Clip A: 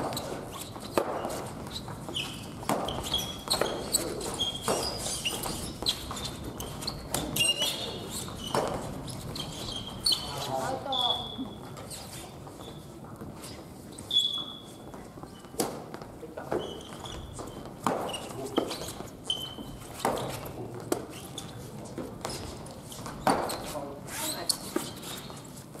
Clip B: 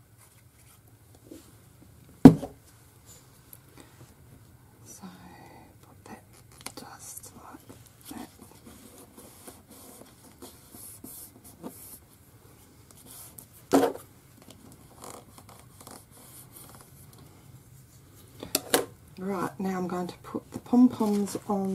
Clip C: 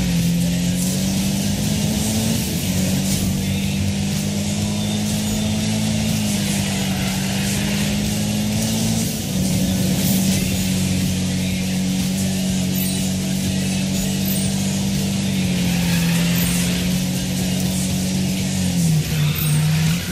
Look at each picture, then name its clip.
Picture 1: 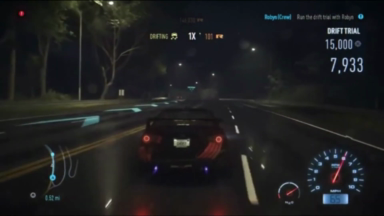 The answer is C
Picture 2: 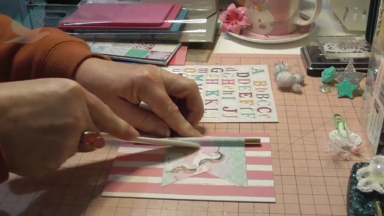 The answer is B